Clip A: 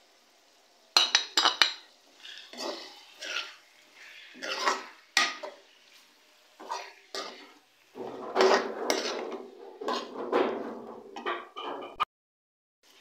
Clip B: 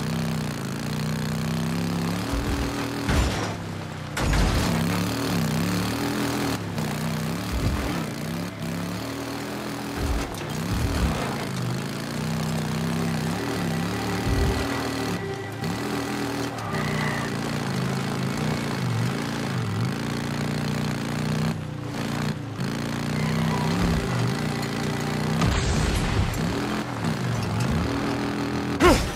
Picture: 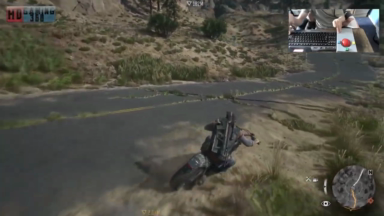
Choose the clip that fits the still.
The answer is B